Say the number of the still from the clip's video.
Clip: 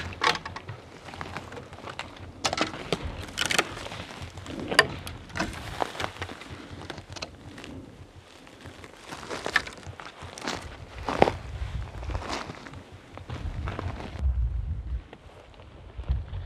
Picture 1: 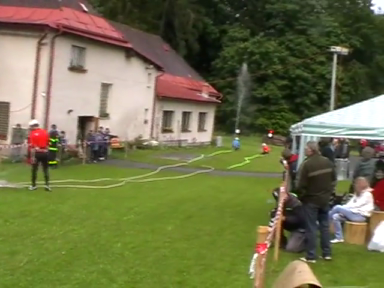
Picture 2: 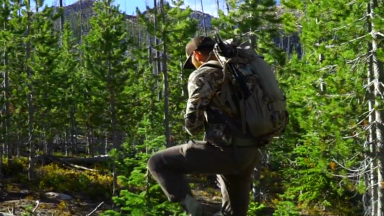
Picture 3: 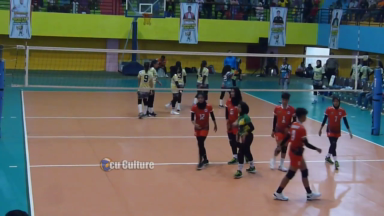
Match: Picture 2